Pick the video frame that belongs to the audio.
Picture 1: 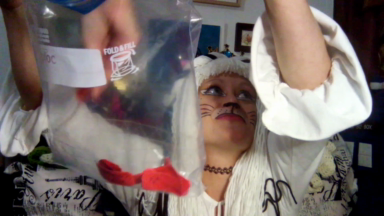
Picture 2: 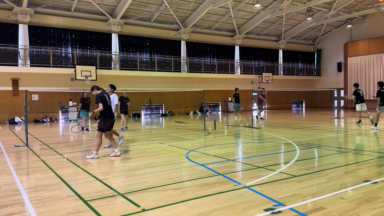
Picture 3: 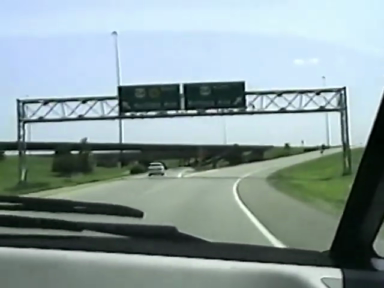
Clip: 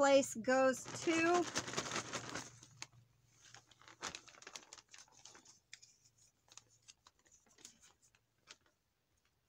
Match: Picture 1